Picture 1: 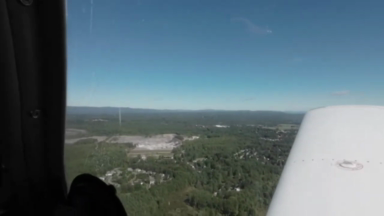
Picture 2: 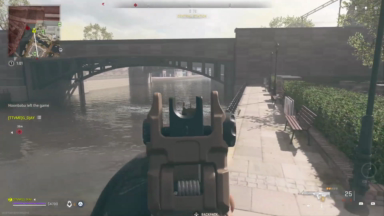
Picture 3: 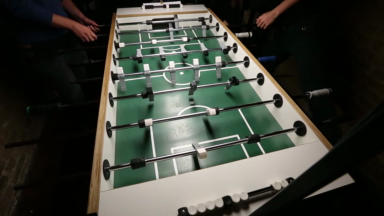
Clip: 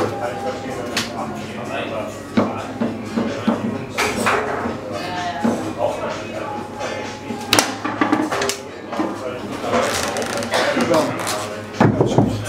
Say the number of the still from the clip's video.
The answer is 3